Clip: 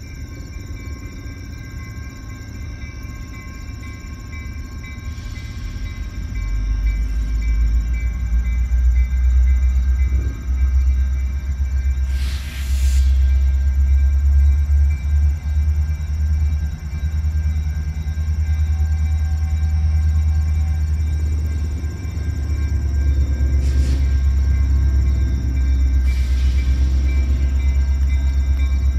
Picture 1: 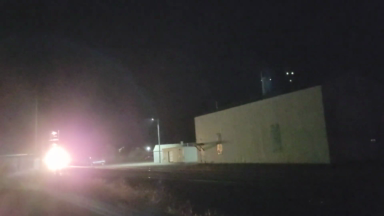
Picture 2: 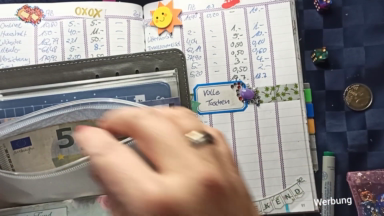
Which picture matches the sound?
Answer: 1